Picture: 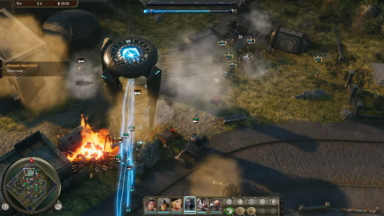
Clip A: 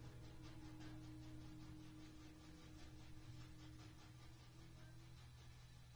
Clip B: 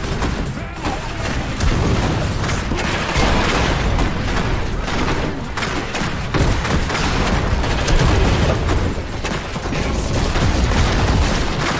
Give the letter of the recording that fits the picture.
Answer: B